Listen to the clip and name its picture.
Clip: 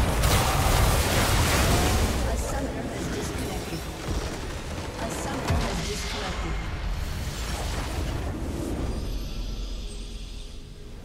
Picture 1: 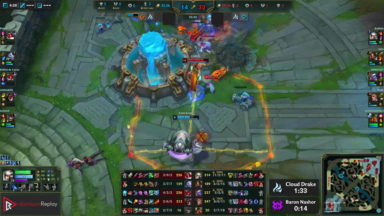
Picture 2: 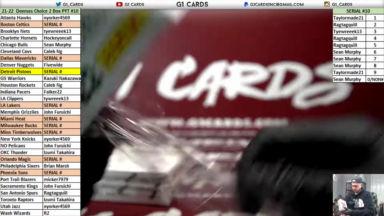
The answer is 1